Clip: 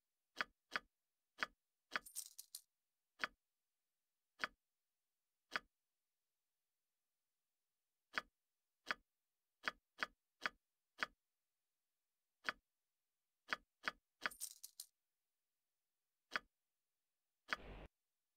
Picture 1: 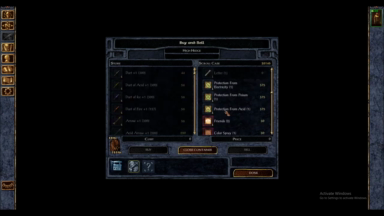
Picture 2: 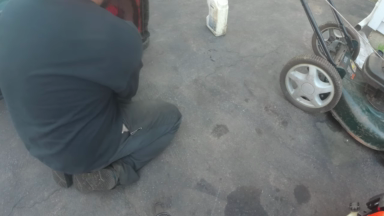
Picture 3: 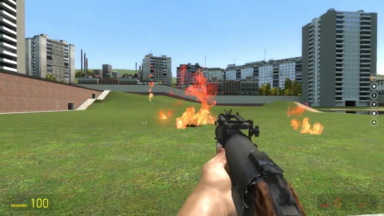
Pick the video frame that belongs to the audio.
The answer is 1